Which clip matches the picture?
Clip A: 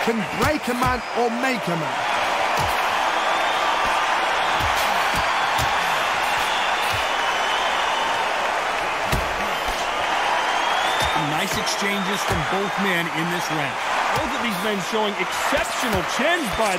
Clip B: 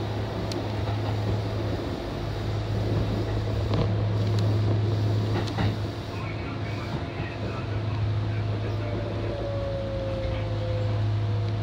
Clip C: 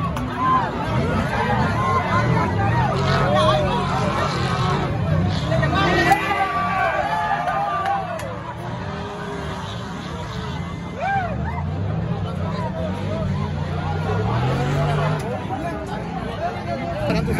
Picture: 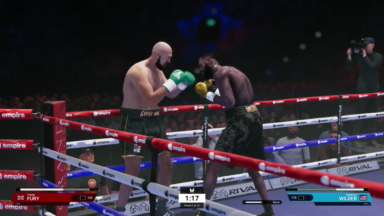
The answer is A